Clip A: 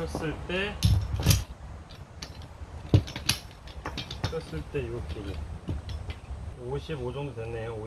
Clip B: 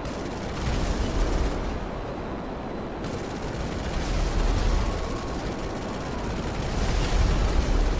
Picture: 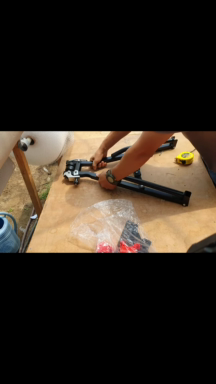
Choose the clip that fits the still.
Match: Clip A